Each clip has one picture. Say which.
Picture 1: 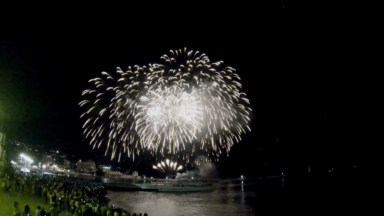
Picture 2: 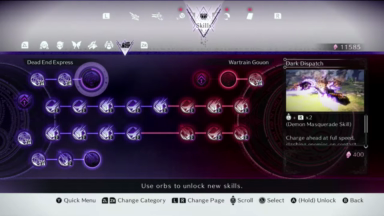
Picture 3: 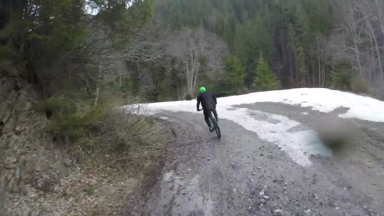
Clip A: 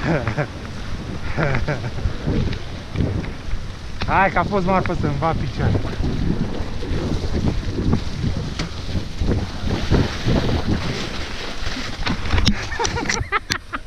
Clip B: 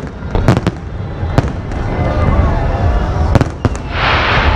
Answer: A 3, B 1